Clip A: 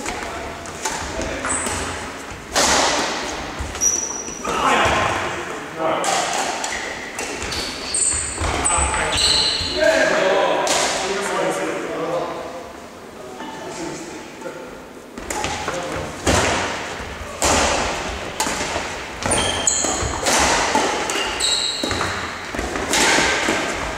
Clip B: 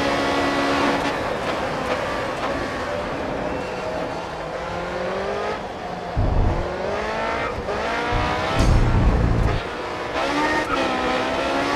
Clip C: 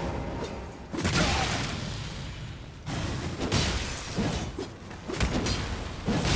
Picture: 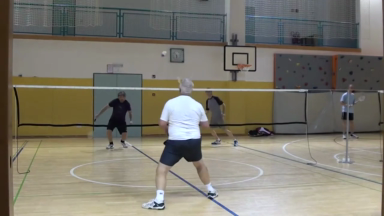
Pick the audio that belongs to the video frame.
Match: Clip A